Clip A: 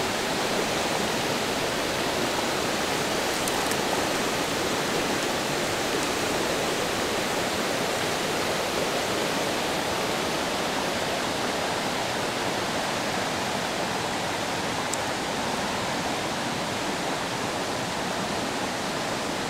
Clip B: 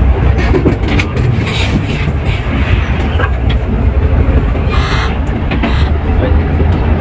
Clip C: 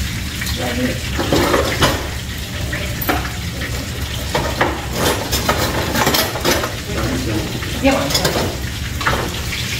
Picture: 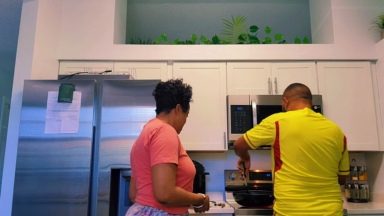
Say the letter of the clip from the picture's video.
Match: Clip C